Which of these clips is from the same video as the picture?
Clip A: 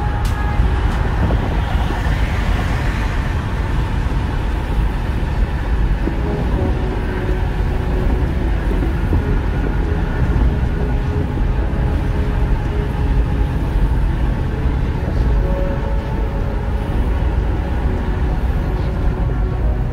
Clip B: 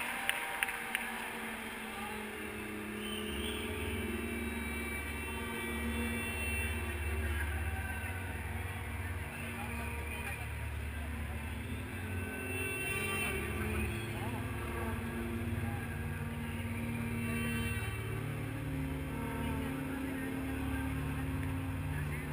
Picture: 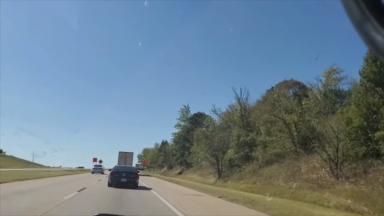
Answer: A